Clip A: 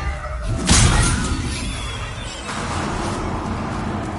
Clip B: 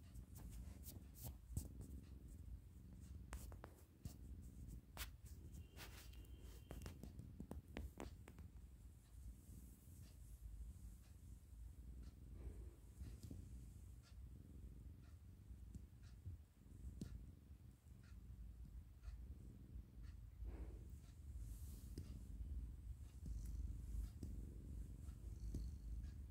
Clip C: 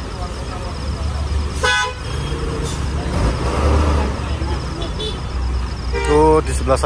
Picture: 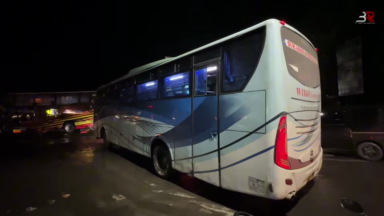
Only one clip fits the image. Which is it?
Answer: C